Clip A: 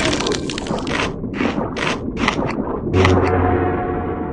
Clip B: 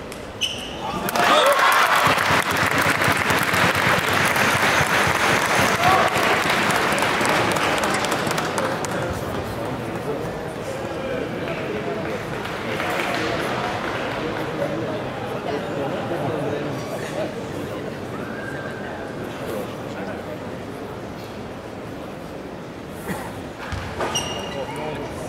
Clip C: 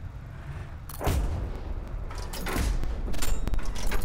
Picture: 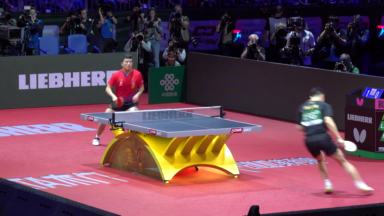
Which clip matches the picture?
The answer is B